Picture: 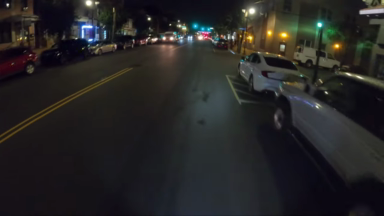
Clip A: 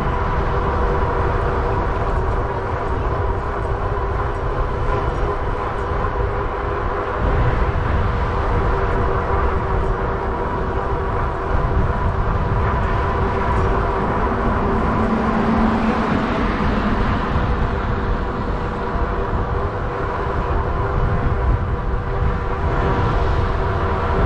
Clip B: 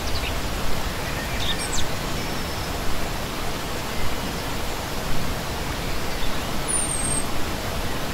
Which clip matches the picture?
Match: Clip A